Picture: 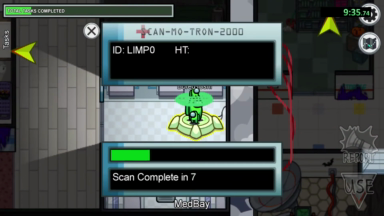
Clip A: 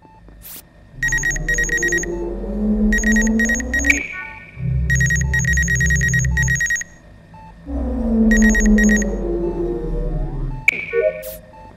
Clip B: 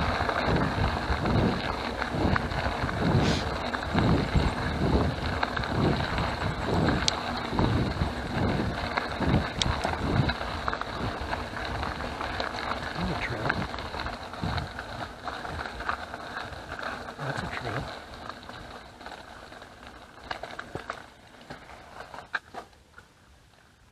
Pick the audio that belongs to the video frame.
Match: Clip A